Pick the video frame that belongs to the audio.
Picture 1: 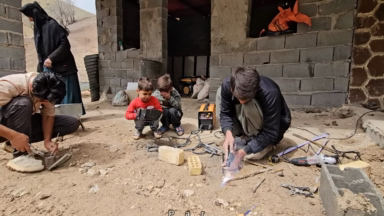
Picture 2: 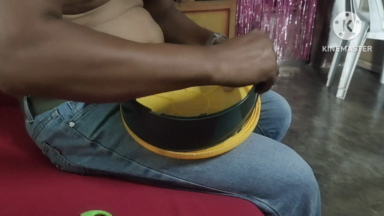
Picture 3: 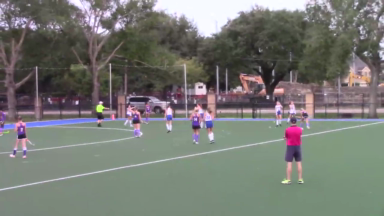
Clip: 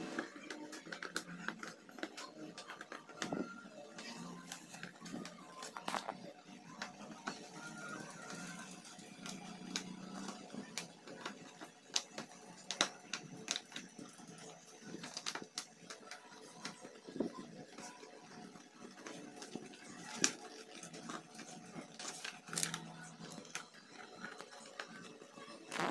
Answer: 2